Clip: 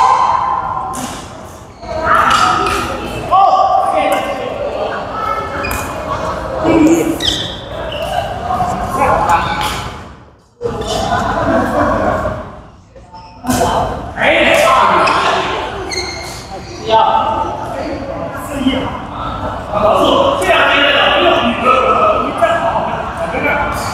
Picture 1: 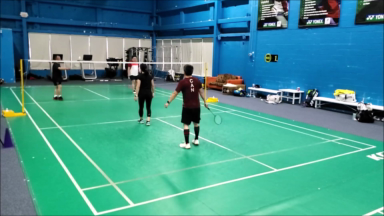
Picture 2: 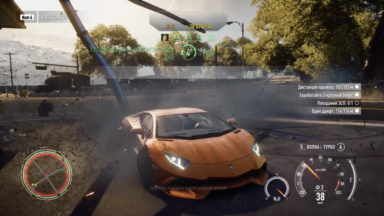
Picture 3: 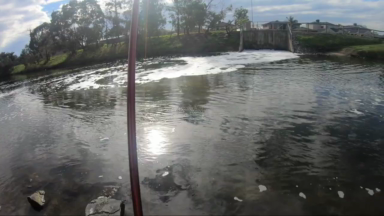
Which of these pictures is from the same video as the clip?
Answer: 1